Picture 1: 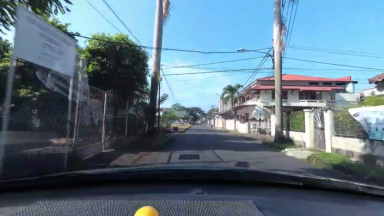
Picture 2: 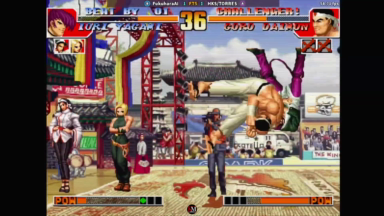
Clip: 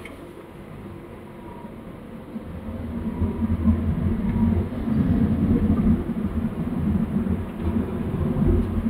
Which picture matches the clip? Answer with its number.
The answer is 1